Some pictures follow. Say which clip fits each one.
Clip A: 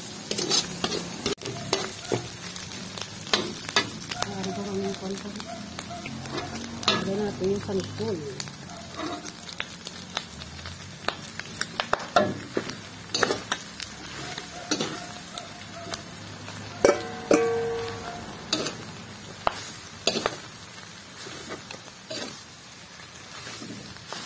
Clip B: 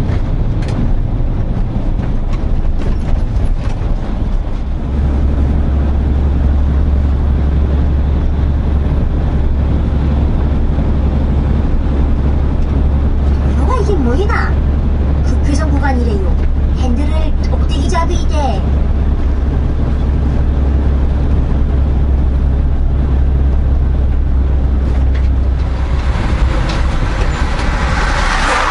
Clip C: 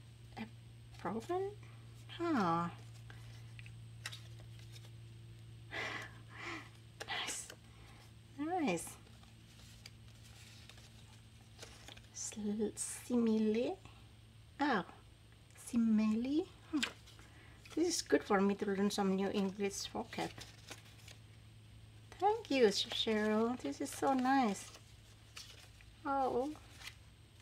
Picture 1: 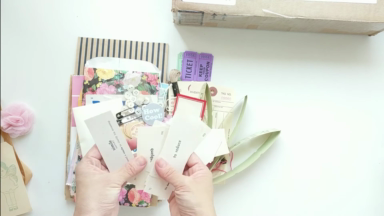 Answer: C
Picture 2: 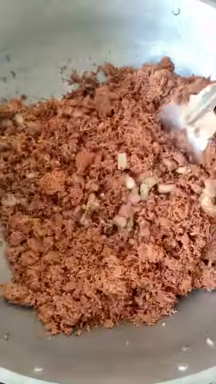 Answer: A